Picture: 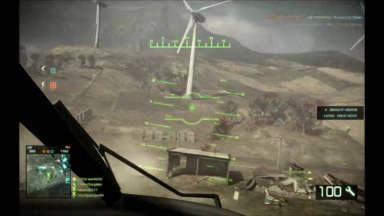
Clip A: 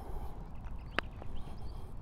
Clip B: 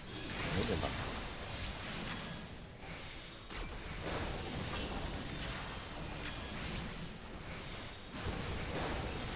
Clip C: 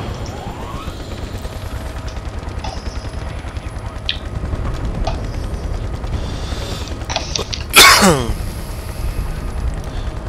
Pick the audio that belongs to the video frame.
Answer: C